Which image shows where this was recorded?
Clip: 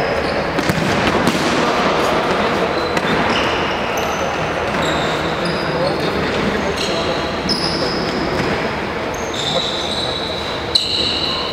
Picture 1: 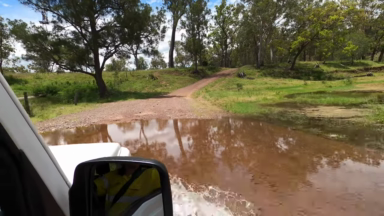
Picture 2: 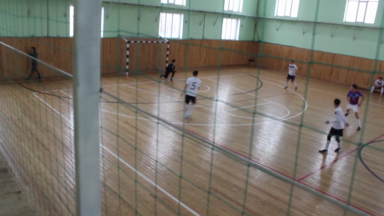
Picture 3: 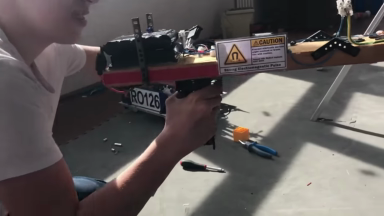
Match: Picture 2